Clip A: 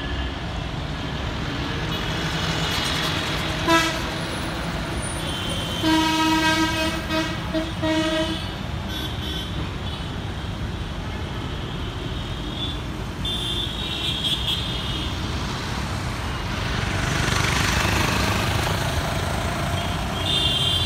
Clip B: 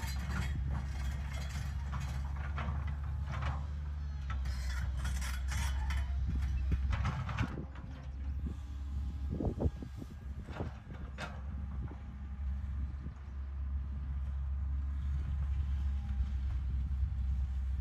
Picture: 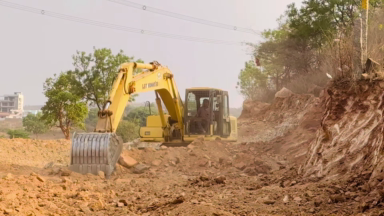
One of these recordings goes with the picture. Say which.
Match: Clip B